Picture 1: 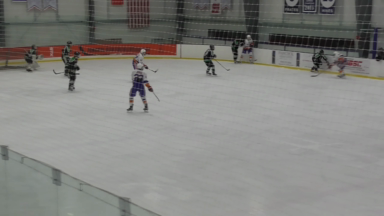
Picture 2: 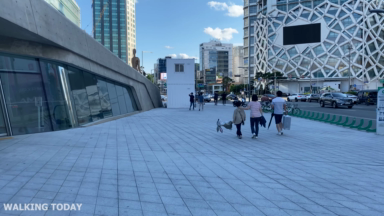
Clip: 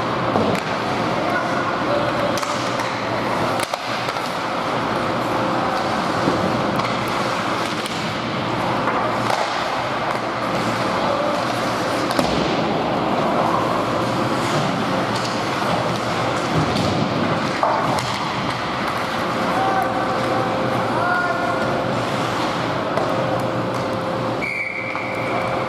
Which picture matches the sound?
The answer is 1